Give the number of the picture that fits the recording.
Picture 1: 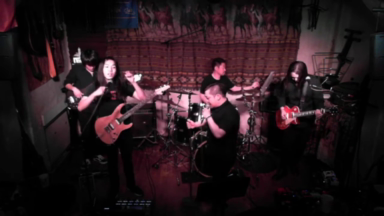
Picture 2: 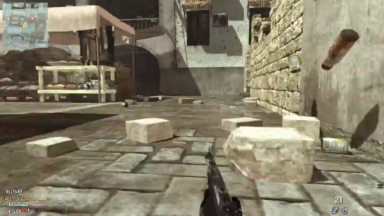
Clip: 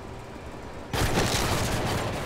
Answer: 2